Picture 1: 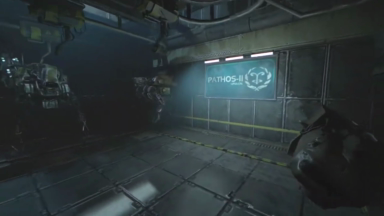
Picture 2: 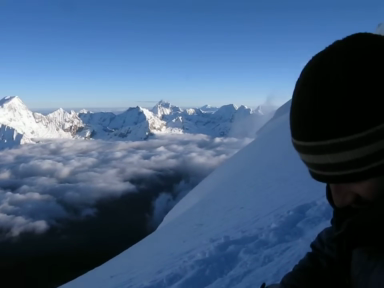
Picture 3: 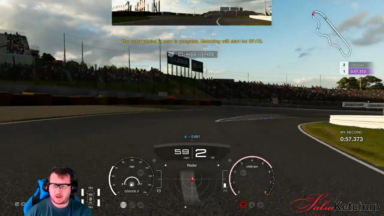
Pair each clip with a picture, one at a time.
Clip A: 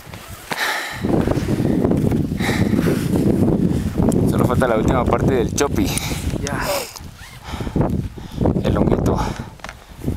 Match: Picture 2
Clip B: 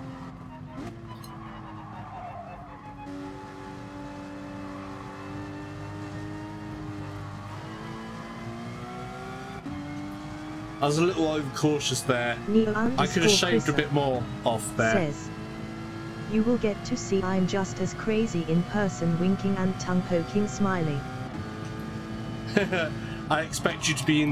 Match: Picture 3